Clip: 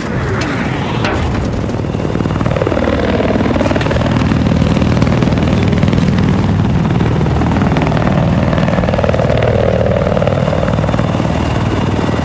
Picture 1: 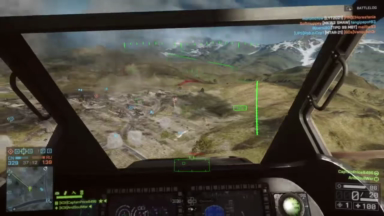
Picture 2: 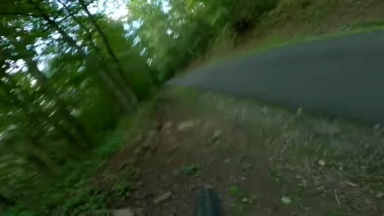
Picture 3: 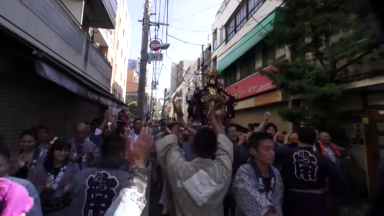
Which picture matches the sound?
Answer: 1